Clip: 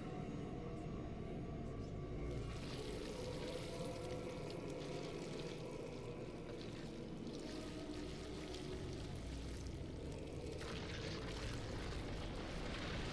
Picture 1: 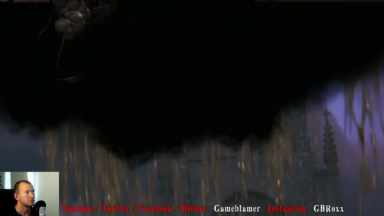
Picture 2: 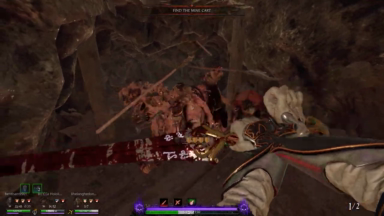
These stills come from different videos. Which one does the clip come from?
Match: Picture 1